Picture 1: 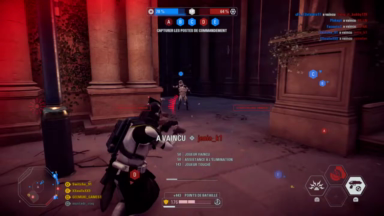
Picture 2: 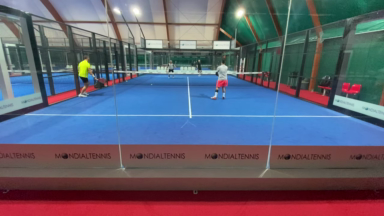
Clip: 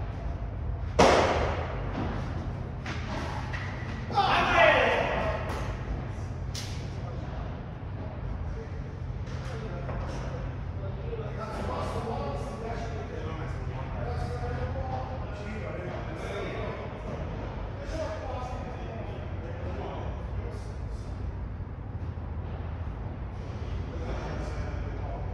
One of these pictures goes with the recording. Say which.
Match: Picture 2